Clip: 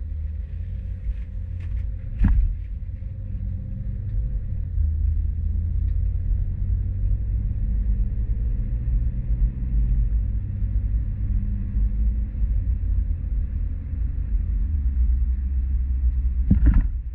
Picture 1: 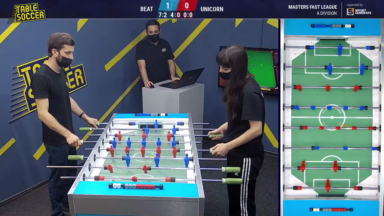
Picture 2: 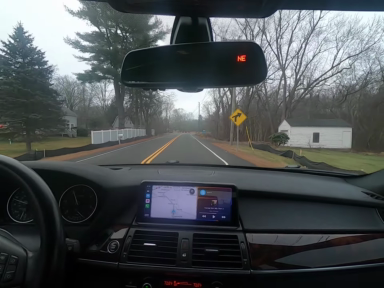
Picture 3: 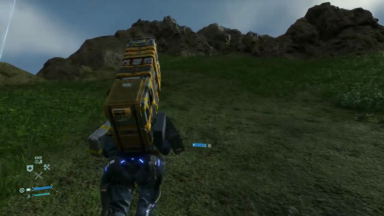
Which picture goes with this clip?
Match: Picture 2